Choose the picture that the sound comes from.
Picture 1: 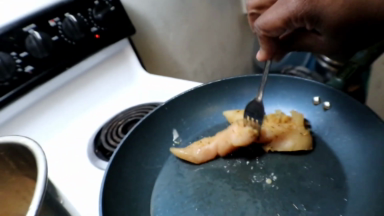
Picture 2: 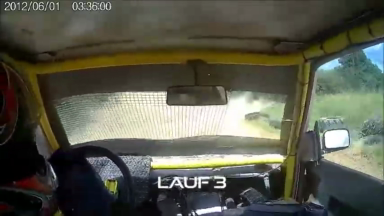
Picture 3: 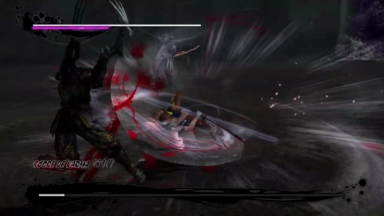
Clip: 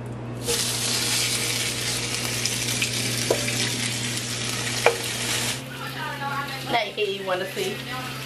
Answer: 1